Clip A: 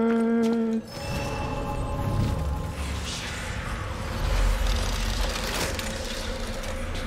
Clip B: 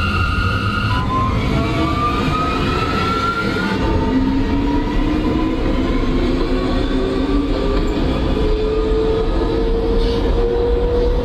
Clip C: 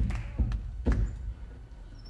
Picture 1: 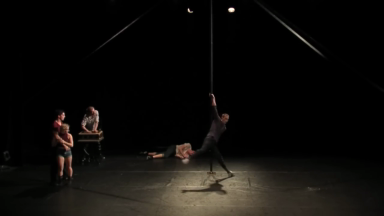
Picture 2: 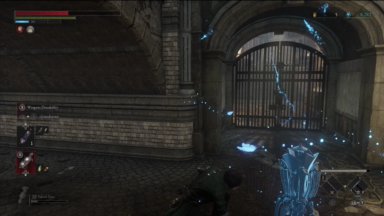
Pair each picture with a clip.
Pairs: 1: C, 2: A